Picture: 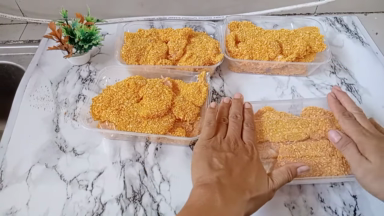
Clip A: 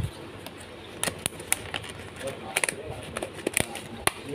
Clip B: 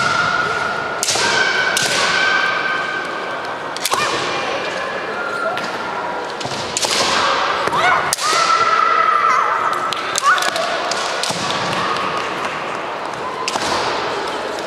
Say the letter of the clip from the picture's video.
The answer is A